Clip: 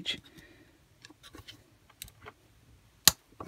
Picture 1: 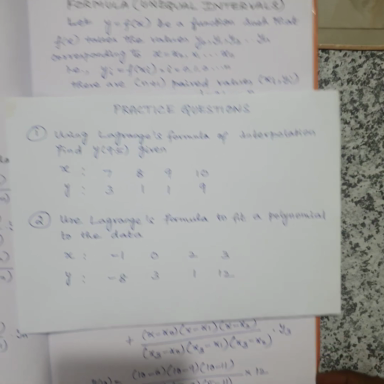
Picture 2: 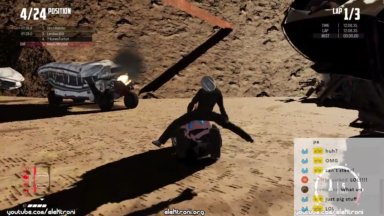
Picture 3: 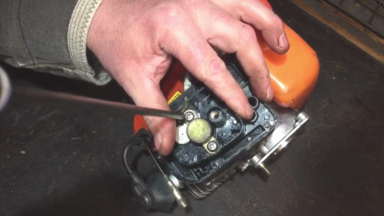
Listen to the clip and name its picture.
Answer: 3